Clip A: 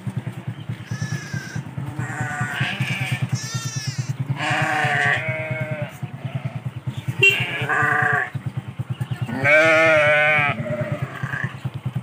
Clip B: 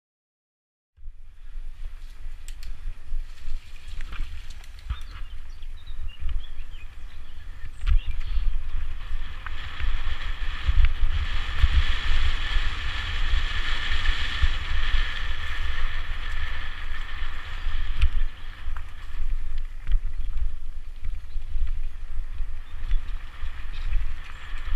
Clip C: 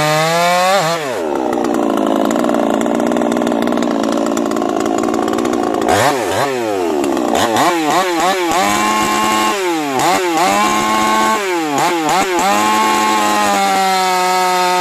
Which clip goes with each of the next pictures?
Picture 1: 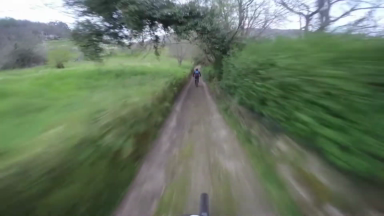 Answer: B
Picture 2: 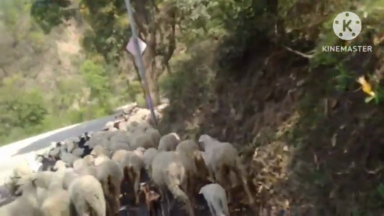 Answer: A